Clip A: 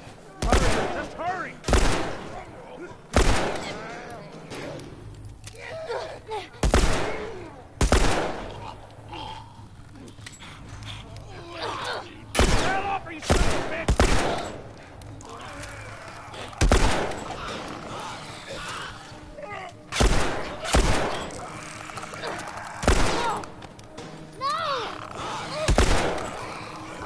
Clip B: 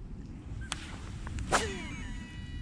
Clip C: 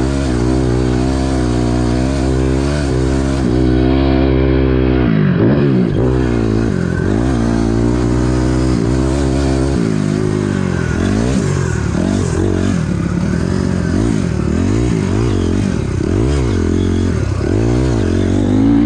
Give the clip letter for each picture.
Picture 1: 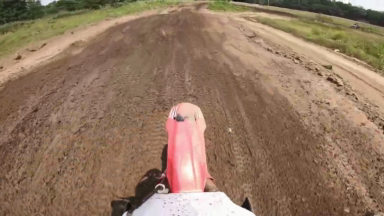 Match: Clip C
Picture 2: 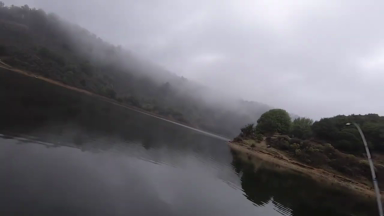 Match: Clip B